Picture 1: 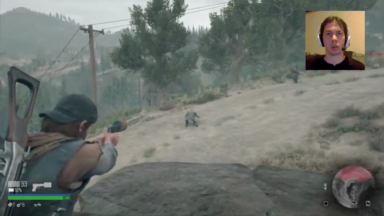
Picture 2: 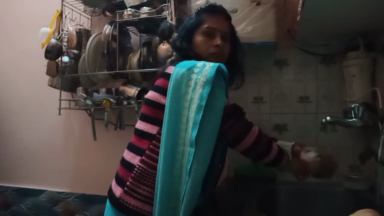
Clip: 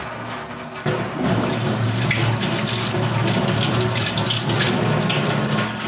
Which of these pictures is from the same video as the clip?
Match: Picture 2